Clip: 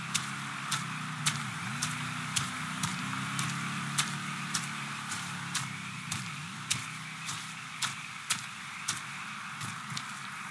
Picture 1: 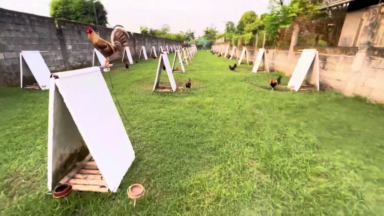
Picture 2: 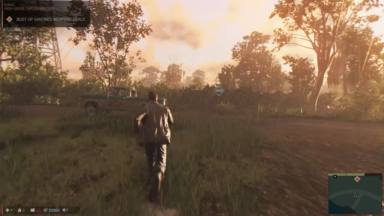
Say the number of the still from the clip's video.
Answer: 2